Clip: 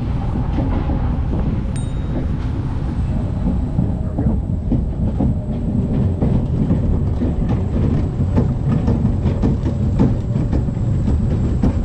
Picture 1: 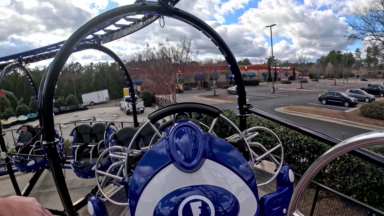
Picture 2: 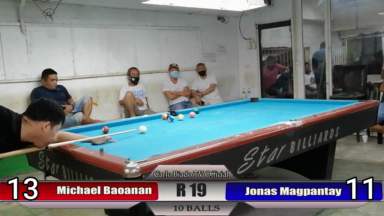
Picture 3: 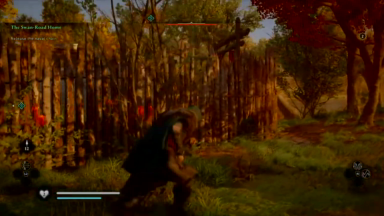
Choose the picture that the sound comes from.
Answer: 1